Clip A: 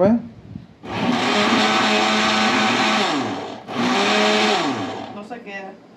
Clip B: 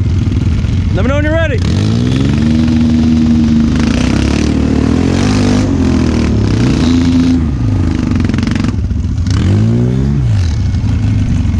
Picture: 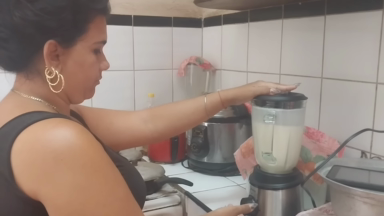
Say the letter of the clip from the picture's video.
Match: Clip A